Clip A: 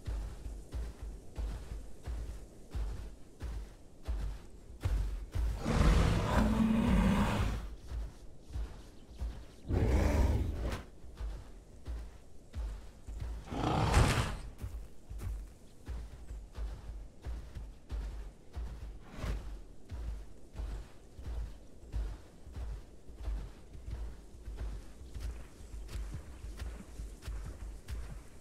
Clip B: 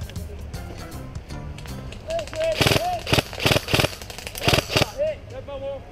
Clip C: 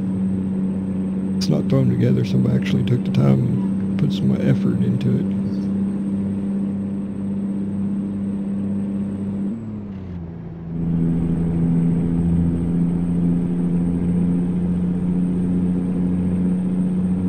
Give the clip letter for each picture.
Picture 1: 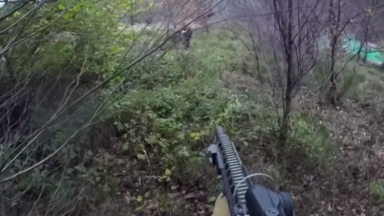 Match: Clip B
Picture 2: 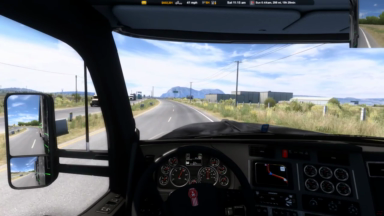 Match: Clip C